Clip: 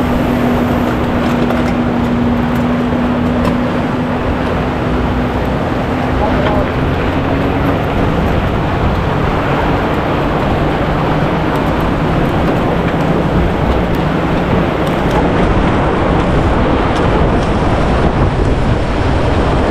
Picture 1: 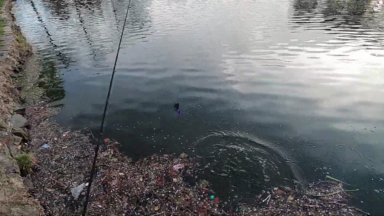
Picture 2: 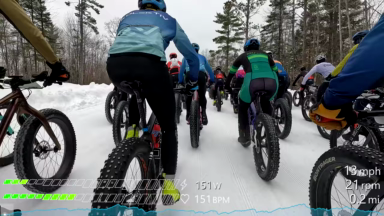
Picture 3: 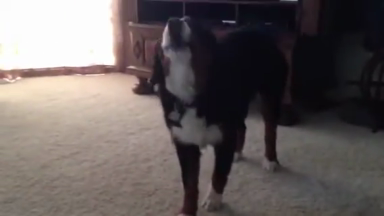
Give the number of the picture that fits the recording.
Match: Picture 2